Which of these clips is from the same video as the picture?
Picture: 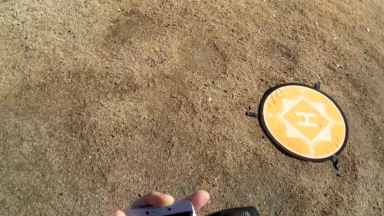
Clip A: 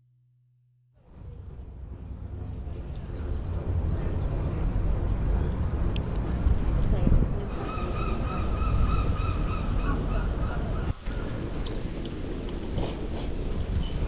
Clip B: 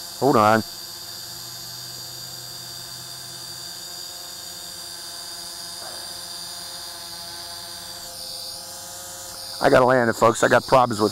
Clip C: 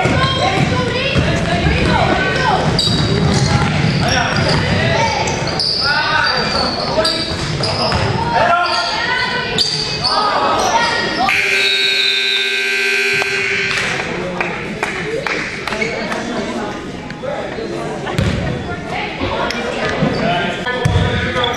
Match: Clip B